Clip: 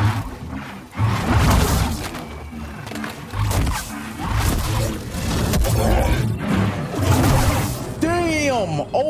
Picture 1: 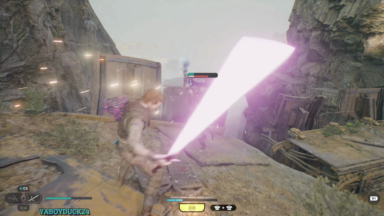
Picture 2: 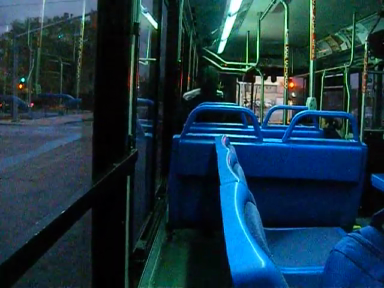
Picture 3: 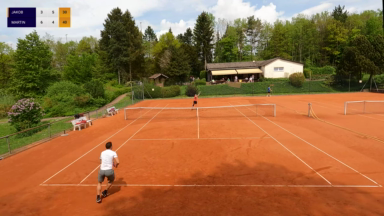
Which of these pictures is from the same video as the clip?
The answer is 1